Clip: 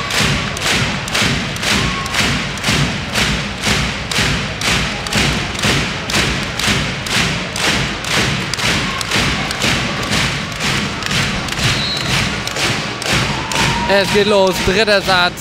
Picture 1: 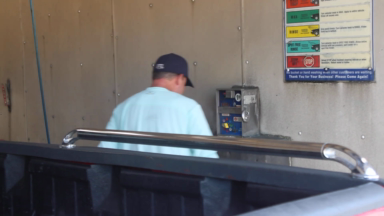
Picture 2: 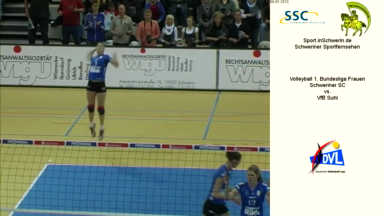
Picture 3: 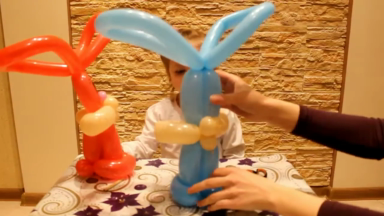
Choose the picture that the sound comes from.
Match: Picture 2